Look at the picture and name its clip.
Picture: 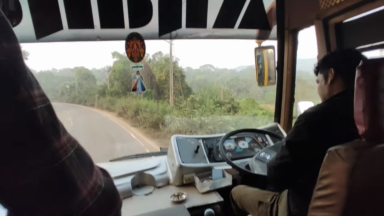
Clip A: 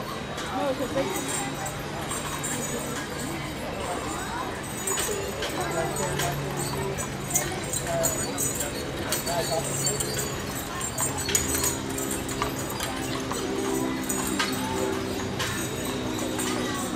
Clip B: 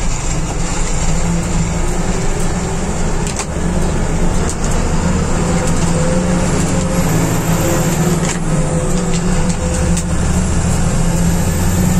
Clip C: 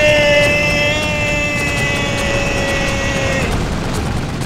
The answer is B